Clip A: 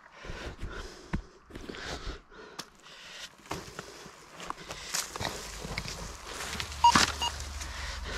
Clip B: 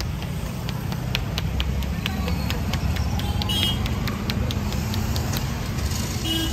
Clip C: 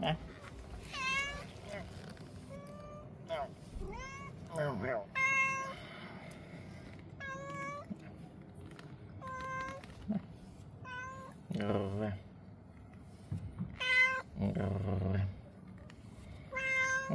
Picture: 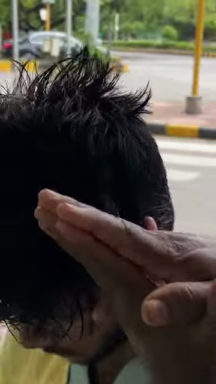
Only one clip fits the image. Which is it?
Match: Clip B